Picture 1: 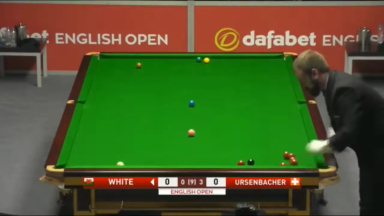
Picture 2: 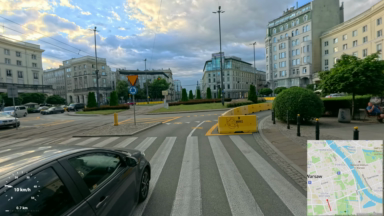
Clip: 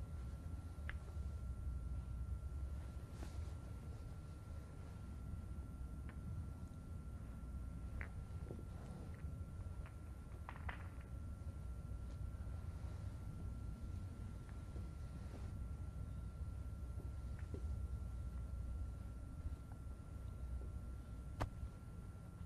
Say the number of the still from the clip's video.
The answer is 1